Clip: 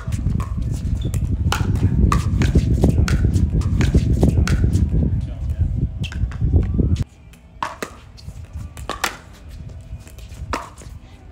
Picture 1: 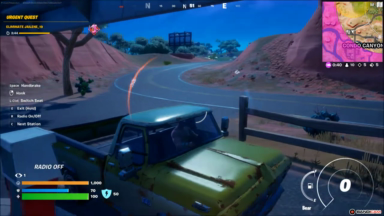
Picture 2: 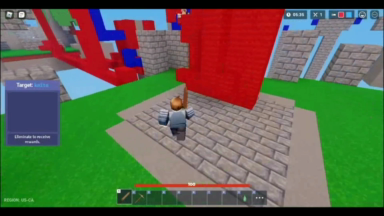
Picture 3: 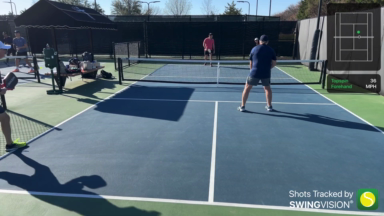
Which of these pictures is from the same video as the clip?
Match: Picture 3